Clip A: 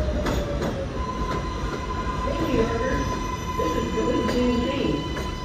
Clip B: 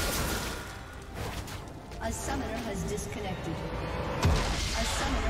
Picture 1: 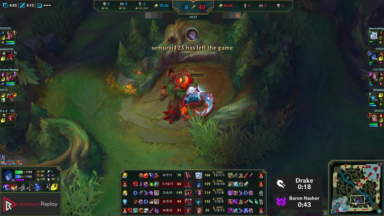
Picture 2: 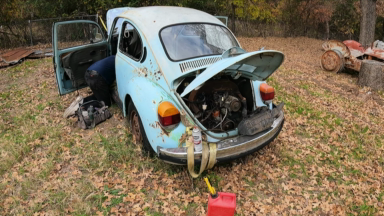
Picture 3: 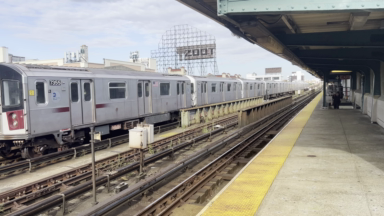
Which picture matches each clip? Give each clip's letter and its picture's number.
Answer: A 3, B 1